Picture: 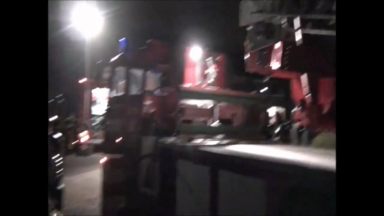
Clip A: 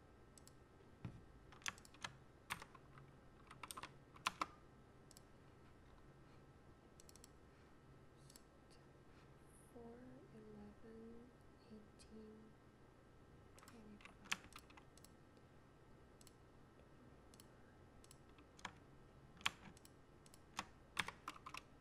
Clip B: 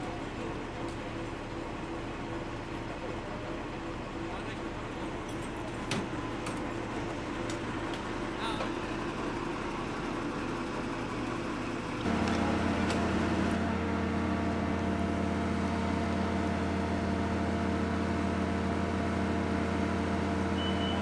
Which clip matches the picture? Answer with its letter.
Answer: B